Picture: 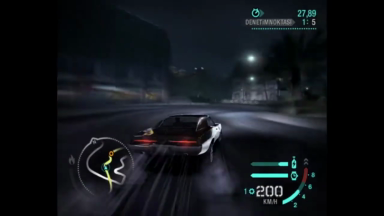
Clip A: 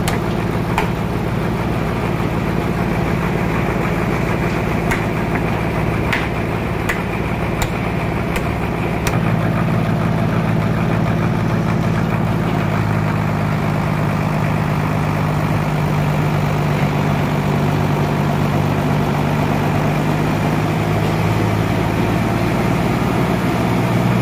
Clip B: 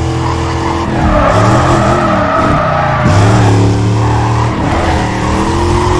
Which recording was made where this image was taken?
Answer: B